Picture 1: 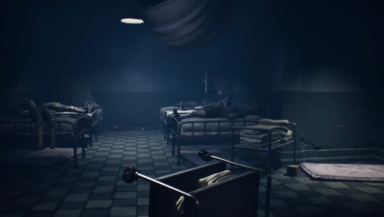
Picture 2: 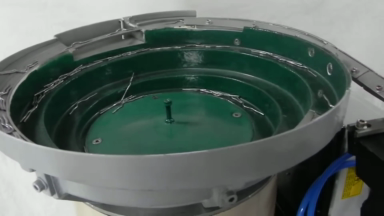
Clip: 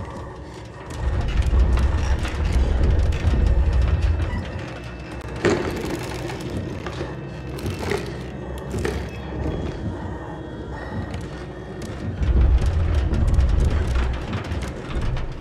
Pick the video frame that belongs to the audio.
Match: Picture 1